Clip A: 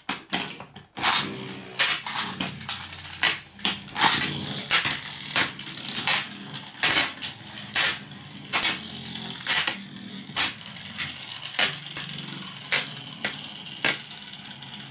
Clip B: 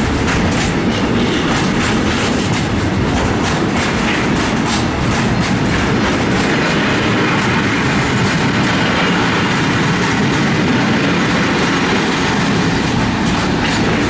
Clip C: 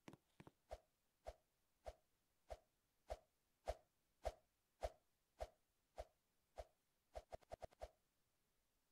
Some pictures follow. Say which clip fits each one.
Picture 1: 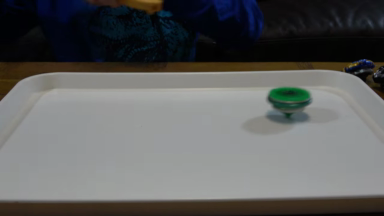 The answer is A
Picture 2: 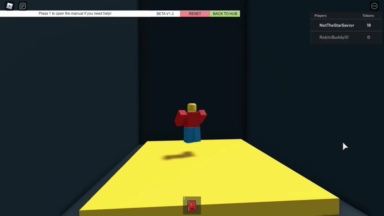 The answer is C